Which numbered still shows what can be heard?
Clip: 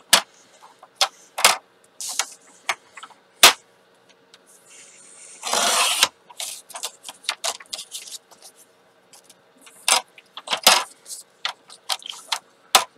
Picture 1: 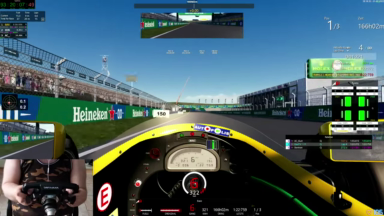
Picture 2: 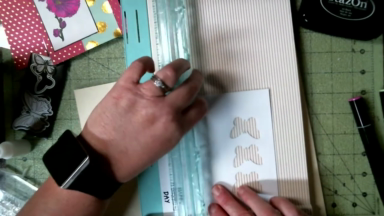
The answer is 2